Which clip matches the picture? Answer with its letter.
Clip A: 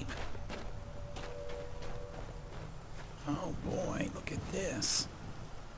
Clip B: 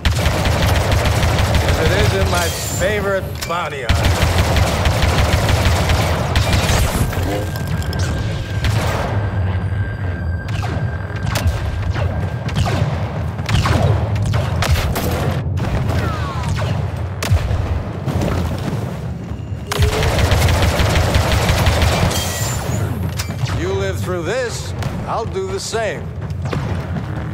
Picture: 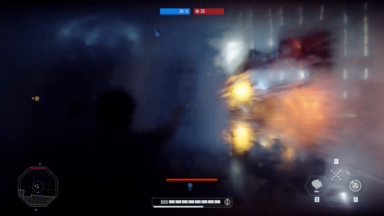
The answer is B